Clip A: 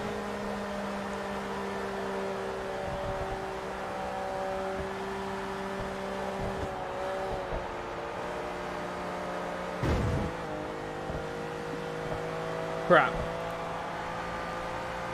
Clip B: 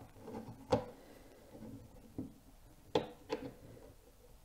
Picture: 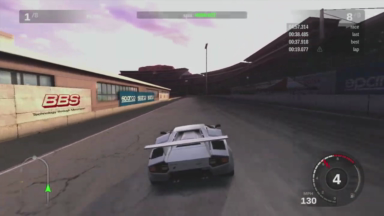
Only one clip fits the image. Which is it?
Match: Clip A